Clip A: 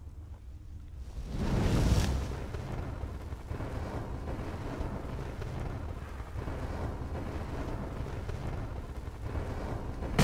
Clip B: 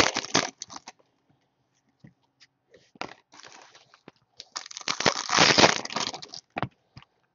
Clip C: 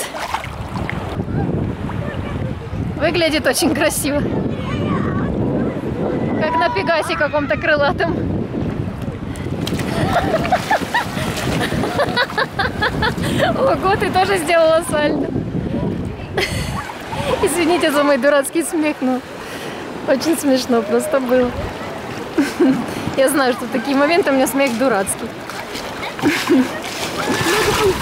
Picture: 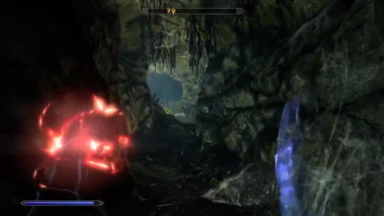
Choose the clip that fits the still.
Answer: A